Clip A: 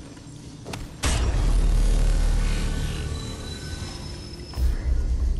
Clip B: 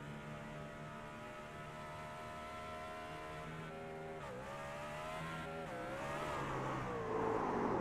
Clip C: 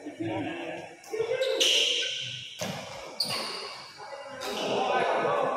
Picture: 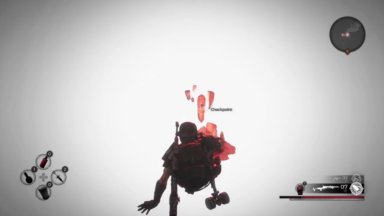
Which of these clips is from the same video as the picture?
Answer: A